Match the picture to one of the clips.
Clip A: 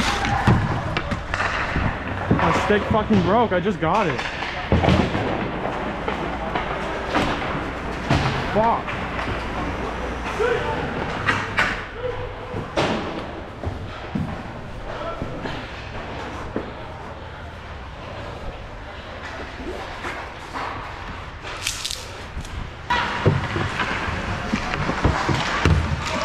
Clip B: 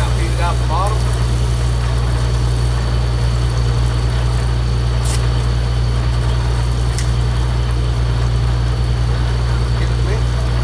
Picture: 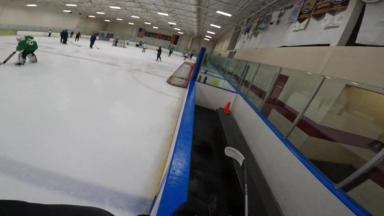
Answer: A